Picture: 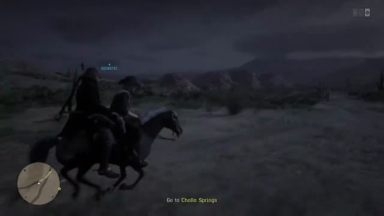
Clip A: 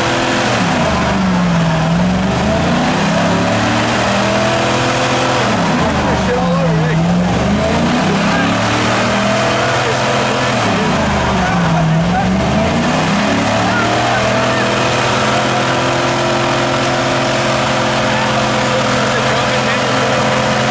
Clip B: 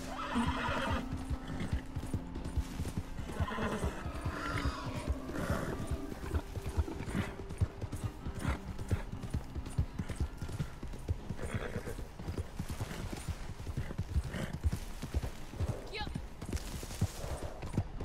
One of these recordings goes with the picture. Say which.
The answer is B